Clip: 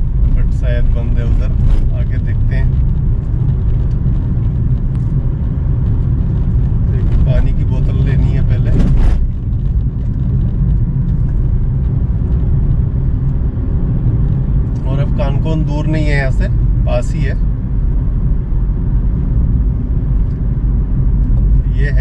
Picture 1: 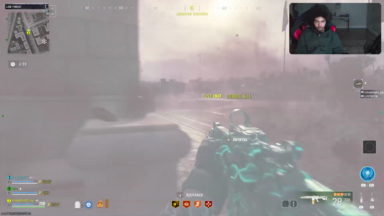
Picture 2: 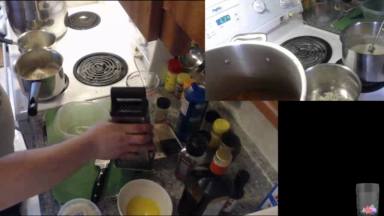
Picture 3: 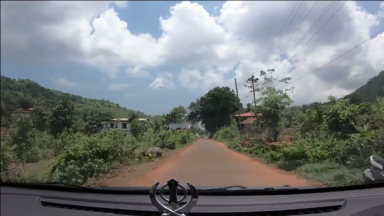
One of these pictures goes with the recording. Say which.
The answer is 3